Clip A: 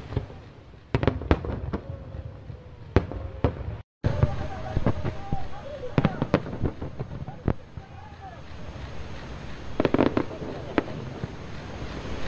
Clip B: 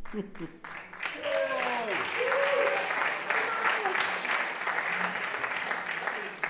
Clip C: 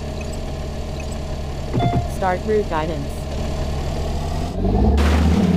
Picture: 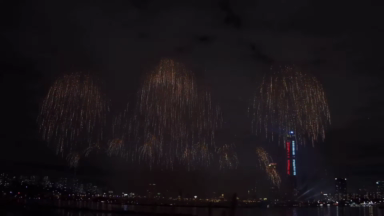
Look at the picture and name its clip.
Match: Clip A